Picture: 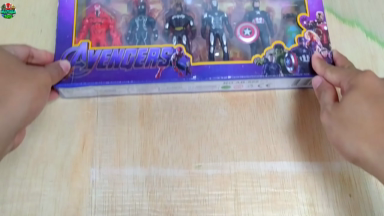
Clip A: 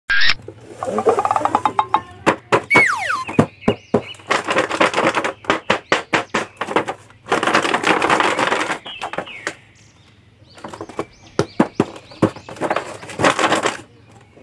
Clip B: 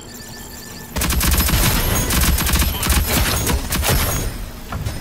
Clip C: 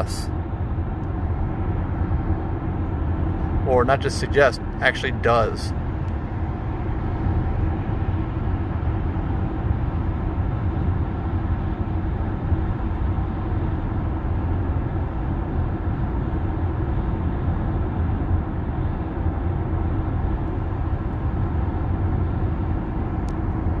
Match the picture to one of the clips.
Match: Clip A